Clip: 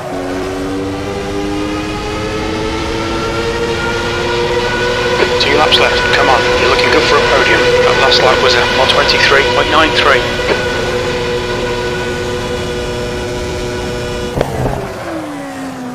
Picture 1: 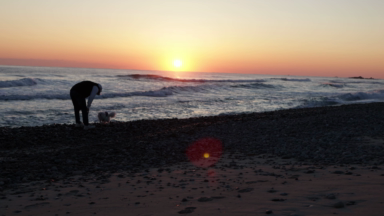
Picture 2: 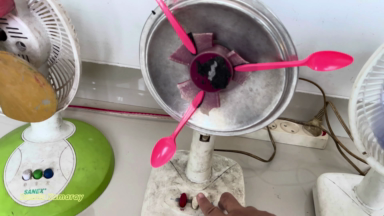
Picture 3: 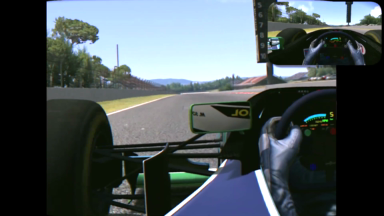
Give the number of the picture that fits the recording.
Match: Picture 3